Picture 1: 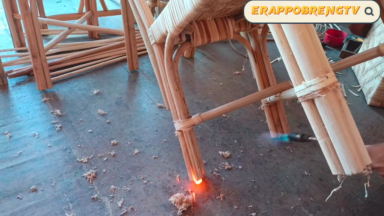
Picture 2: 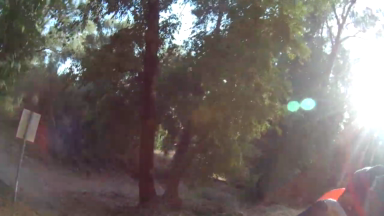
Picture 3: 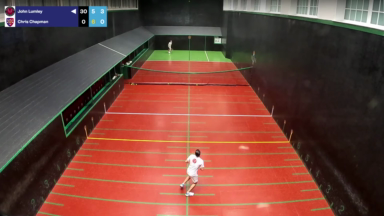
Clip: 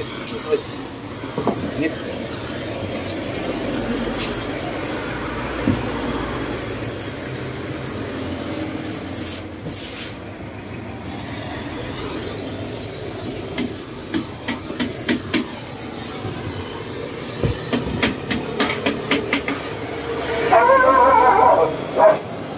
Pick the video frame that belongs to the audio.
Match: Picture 1